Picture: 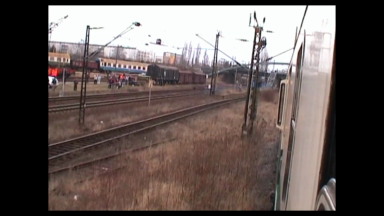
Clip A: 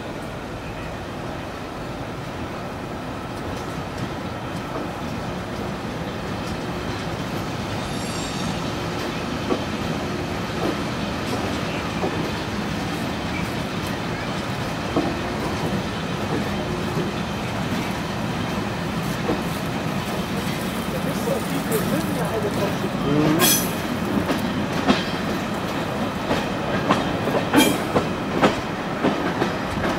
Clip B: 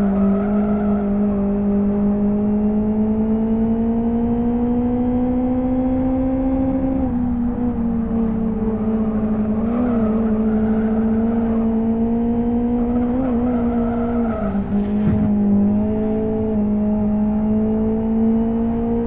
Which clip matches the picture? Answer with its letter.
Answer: A